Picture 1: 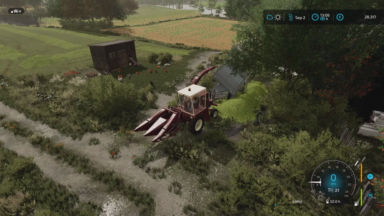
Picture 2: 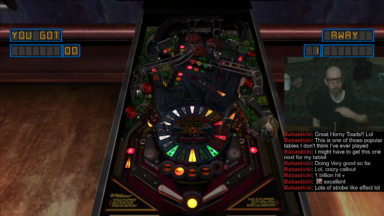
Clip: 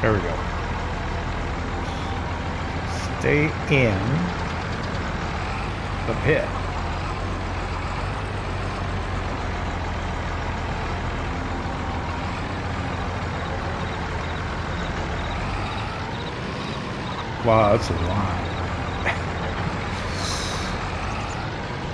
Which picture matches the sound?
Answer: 1